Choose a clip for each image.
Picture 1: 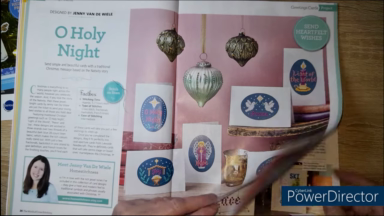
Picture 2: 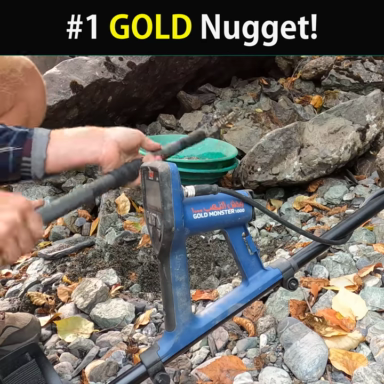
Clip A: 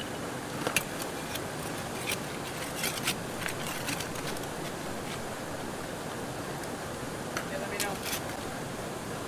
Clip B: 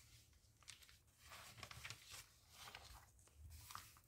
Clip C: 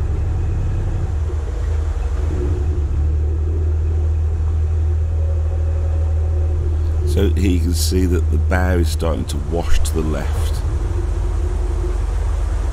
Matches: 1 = B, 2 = A